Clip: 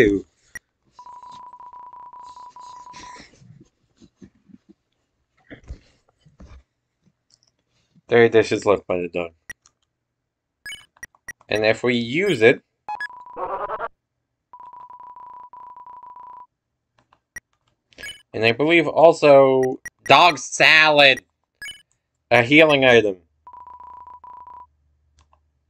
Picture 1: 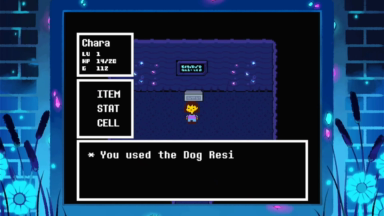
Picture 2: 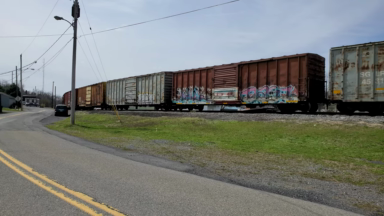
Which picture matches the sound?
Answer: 1